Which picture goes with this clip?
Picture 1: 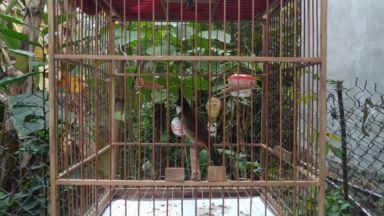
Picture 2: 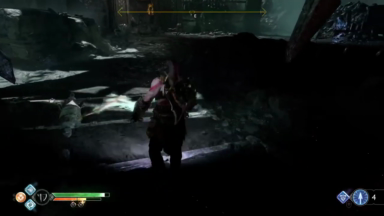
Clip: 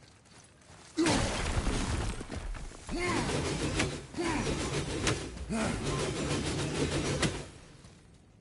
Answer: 2